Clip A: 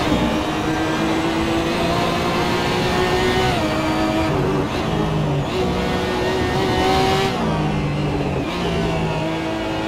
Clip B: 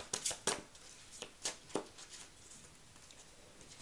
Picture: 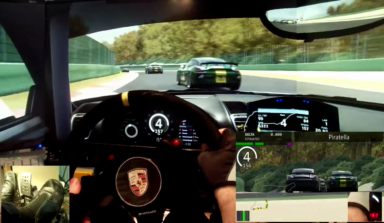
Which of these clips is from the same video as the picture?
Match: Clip A